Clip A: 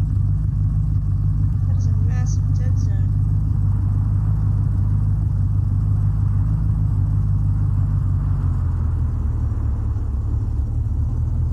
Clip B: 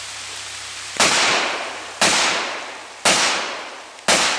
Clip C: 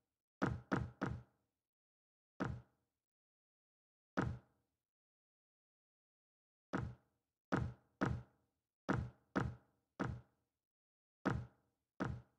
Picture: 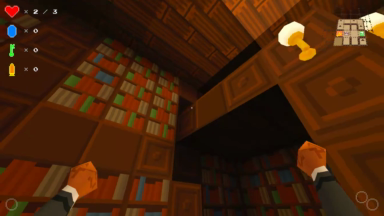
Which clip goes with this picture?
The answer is C